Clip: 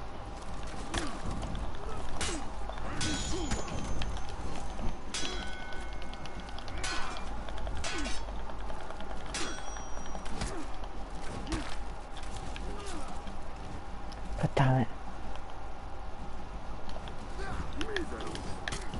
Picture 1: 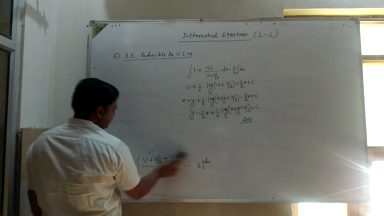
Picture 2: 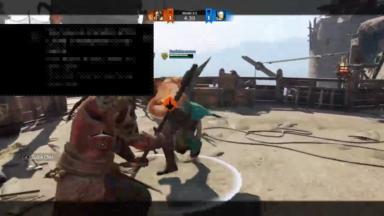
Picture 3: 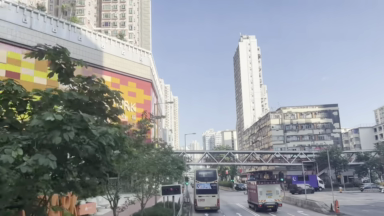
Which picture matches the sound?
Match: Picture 2